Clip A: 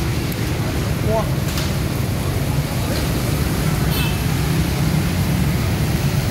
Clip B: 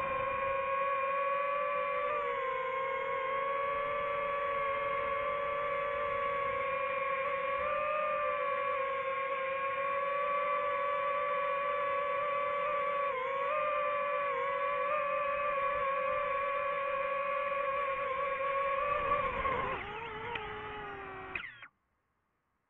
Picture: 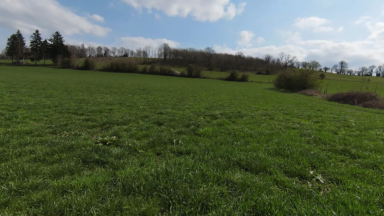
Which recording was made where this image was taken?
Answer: B